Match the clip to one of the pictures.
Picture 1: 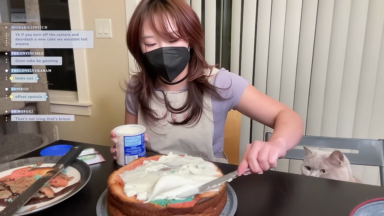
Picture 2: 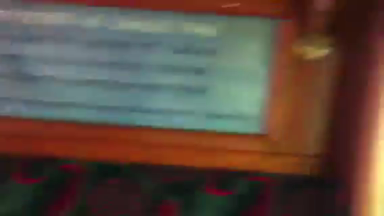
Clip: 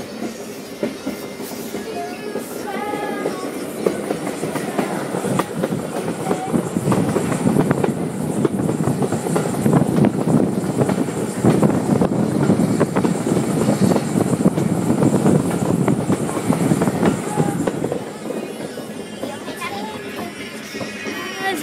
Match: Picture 2